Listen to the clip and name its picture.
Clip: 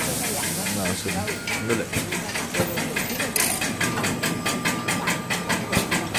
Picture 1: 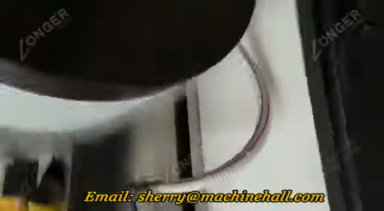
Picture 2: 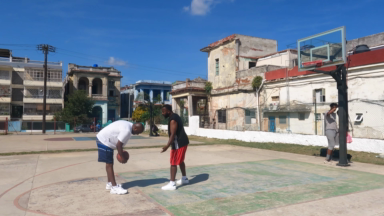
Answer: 1